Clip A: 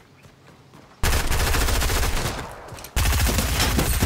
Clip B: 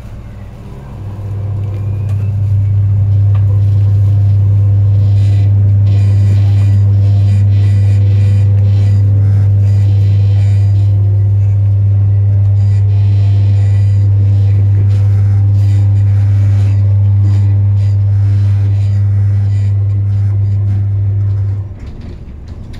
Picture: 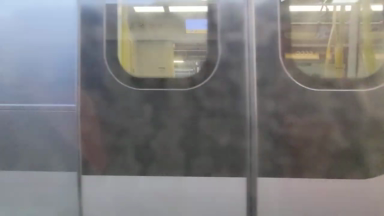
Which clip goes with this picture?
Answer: B